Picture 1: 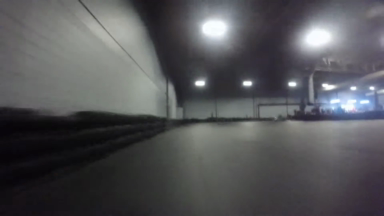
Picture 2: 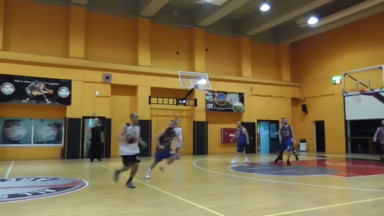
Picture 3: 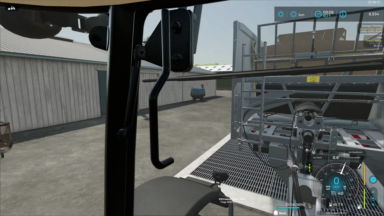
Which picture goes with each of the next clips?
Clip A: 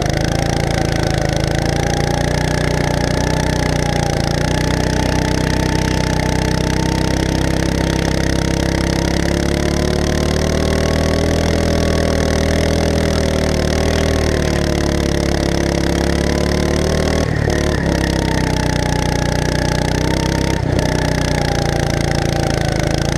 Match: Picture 1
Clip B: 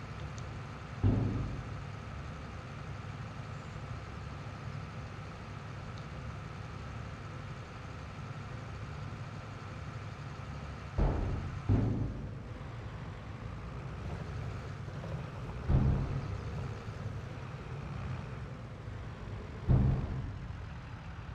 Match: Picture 3